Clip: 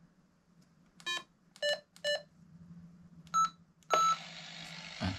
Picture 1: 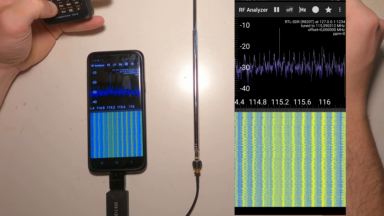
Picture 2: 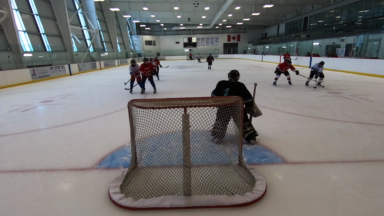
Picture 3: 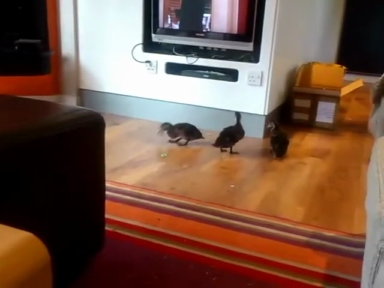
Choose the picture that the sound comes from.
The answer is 1